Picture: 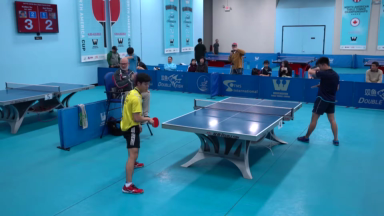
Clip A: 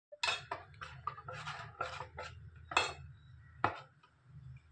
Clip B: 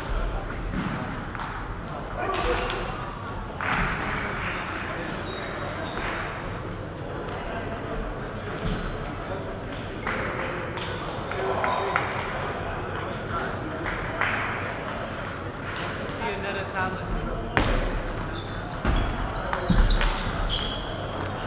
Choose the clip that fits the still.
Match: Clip B